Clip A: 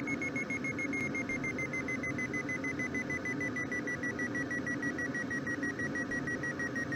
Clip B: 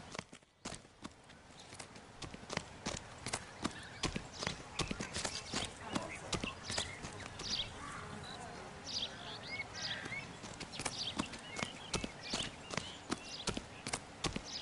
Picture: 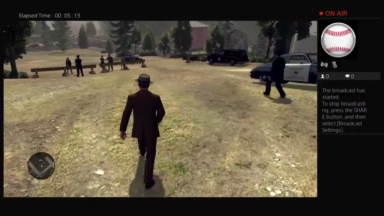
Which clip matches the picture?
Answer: B